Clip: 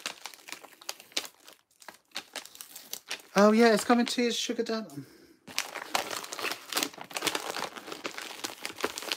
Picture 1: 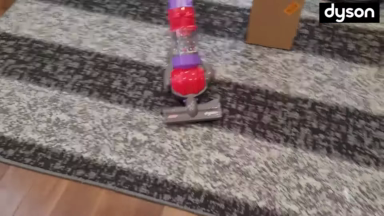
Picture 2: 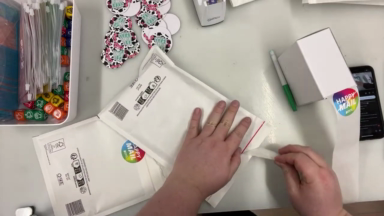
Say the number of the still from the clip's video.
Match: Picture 2